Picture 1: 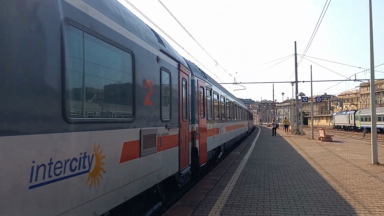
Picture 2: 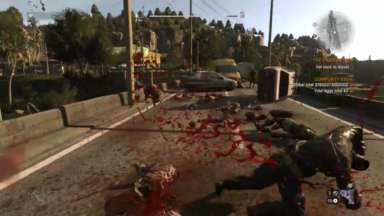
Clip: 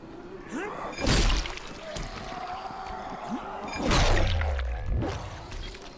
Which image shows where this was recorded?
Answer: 2